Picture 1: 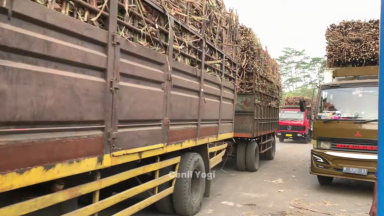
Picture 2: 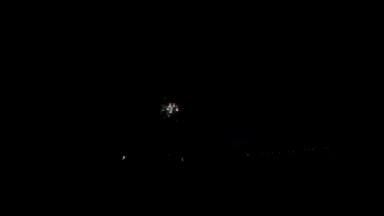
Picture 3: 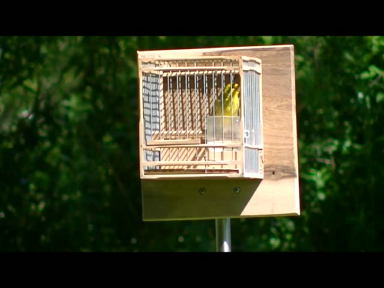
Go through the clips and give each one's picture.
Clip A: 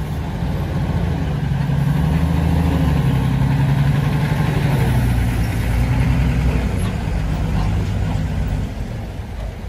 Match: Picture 1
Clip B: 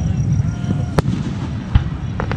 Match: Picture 2